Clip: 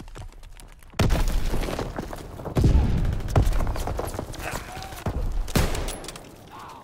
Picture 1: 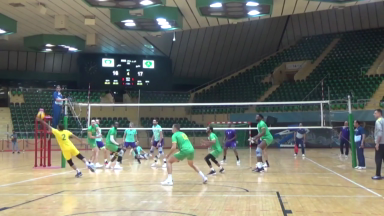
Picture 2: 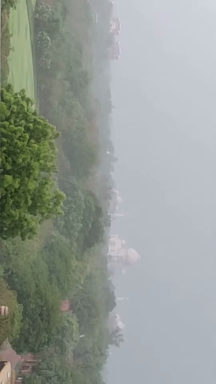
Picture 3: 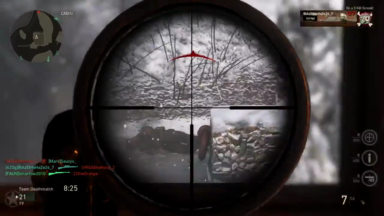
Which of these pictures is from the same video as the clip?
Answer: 3